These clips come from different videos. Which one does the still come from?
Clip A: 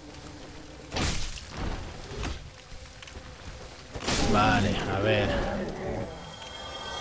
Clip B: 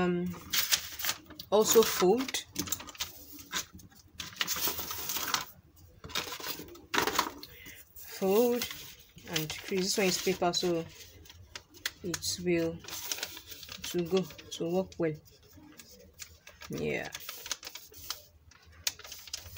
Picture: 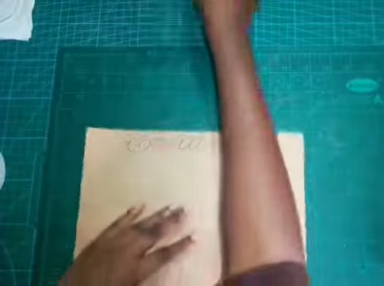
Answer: B